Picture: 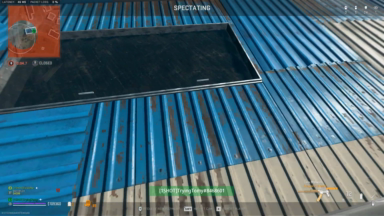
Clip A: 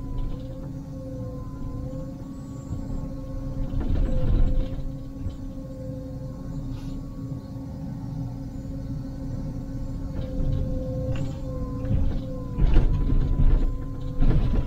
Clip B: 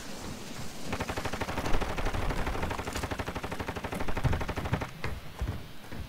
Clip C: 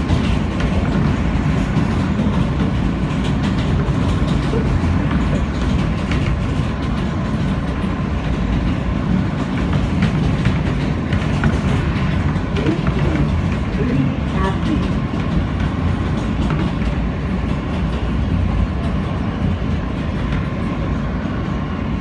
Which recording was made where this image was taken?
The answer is B